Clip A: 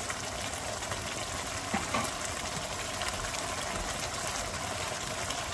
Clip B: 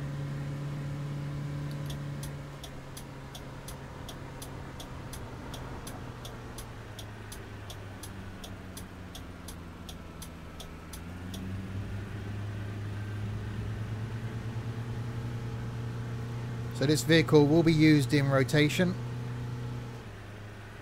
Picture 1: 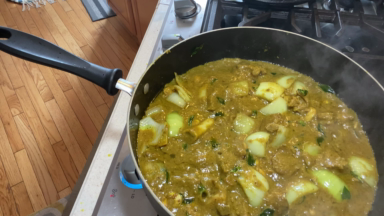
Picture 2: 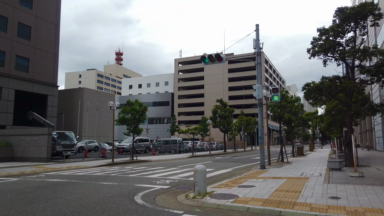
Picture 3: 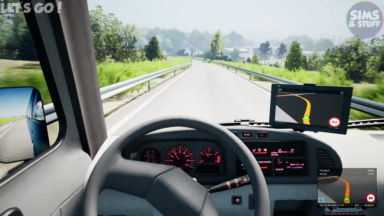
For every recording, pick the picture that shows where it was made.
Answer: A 1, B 3